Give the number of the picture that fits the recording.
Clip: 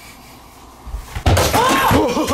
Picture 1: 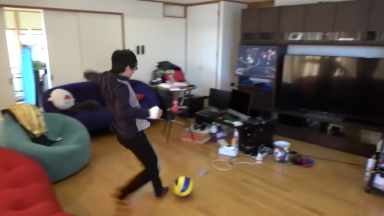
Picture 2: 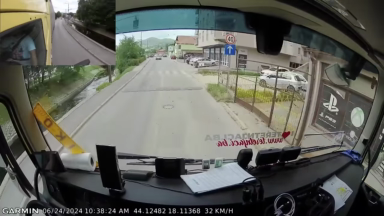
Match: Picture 1